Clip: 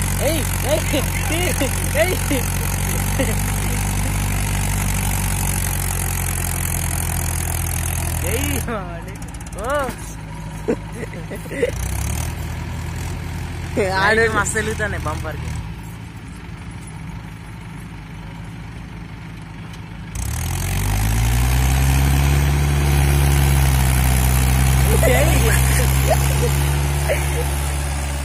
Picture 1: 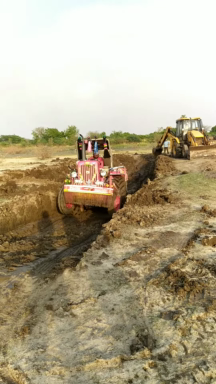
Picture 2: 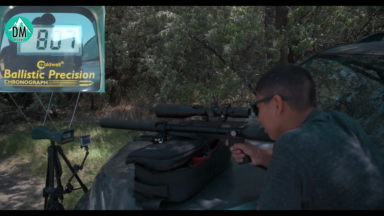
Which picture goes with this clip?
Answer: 1